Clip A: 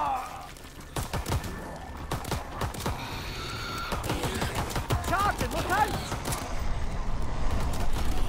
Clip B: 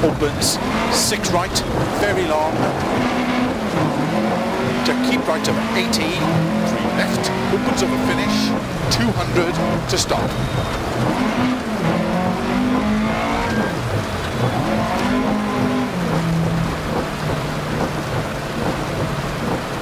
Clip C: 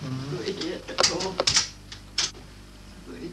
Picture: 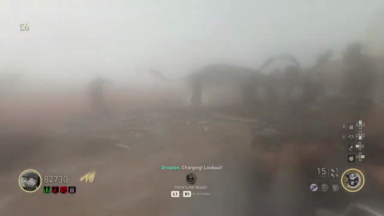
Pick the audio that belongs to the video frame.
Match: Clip A